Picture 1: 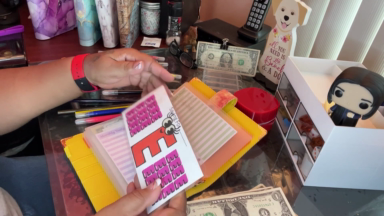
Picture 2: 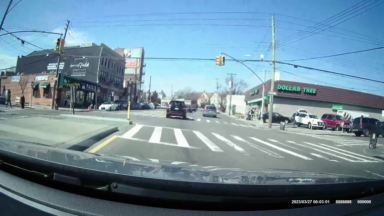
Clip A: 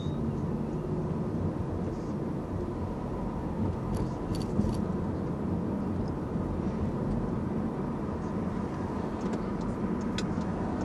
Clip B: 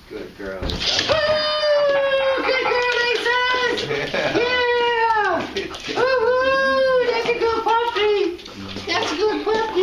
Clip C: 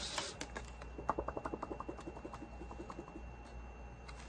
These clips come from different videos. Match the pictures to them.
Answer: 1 C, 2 A